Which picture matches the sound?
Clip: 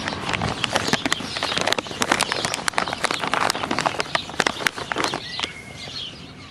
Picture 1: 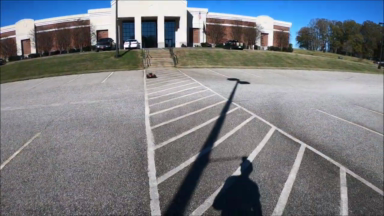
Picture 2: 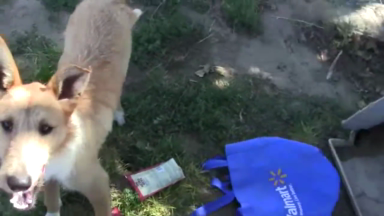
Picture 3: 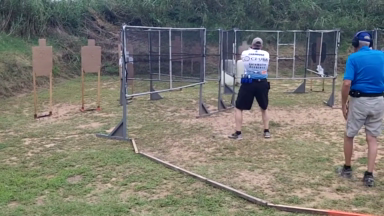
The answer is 2